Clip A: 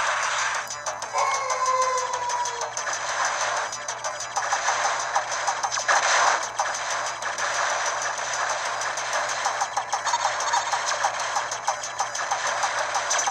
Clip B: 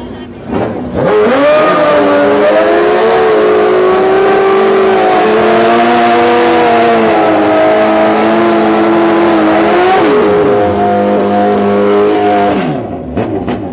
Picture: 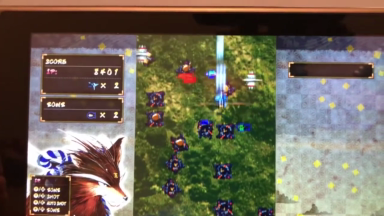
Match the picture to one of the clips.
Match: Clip A